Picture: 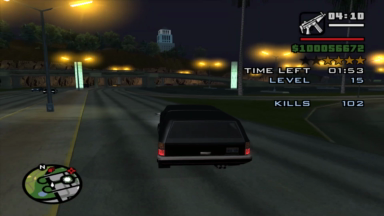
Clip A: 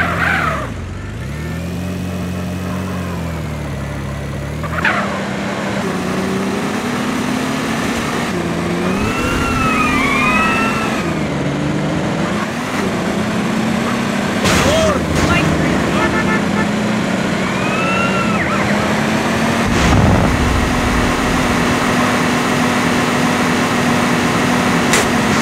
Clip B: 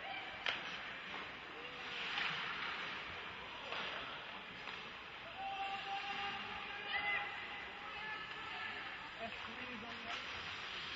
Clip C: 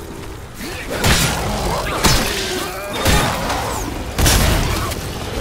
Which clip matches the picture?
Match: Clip A